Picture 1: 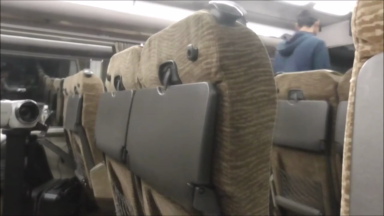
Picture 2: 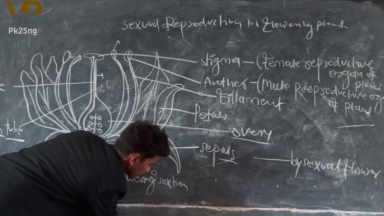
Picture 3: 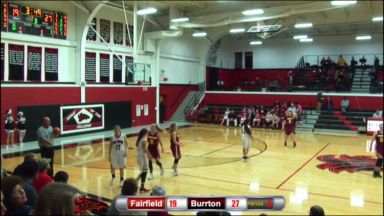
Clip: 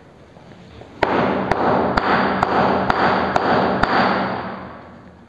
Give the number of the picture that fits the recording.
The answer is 2